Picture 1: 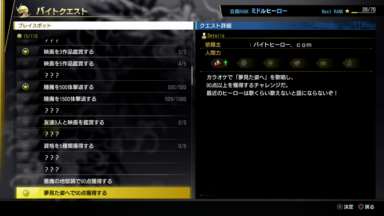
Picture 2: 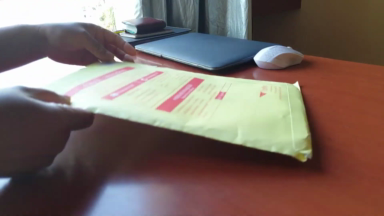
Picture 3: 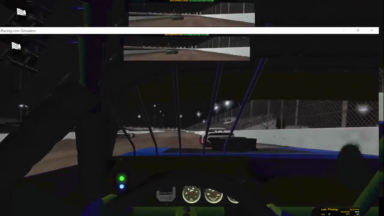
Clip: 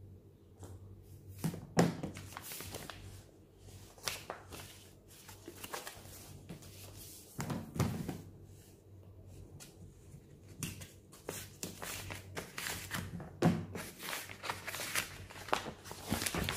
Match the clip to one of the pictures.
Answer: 2